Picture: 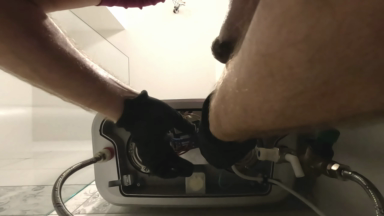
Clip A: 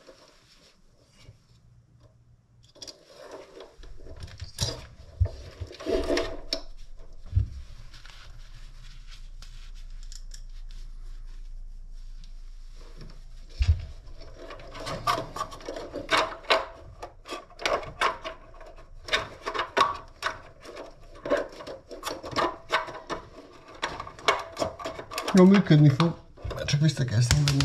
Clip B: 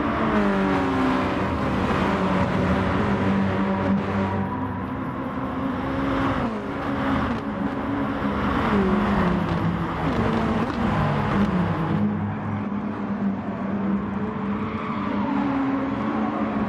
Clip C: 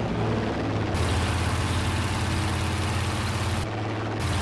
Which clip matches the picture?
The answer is A